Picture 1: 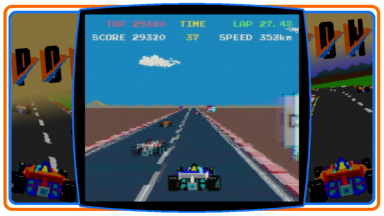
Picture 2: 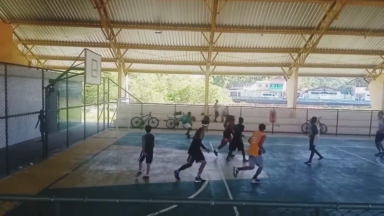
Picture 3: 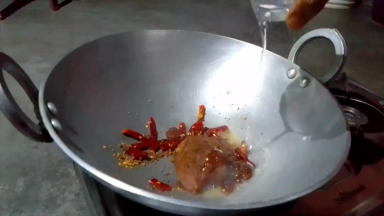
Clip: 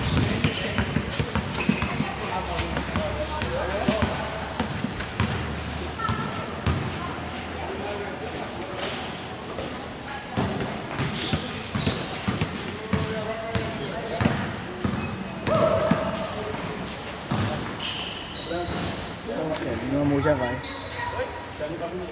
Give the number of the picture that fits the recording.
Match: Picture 2